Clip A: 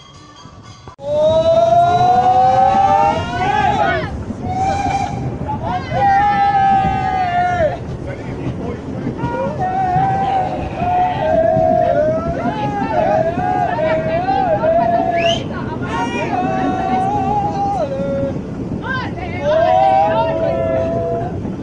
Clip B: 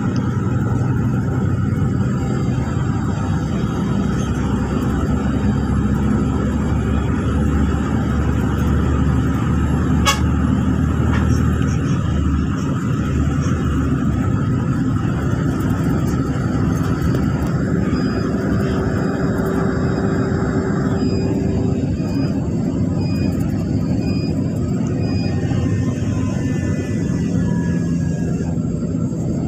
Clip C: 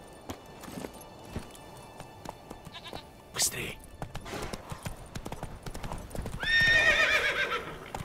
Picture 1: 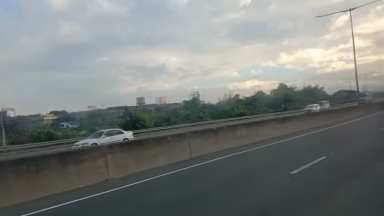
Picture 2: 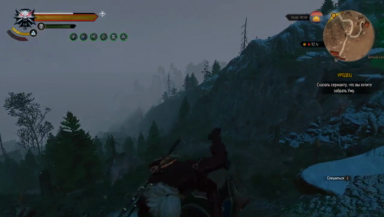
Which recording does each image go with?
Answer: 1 B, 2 C